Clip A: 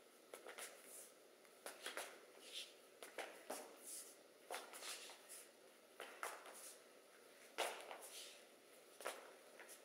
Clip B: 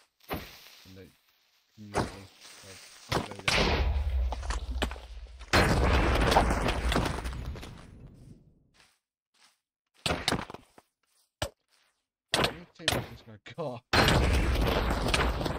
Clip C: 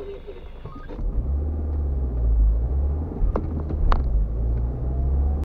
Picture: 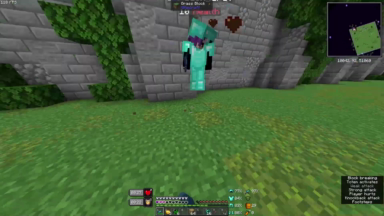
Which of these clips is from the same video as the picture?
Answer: B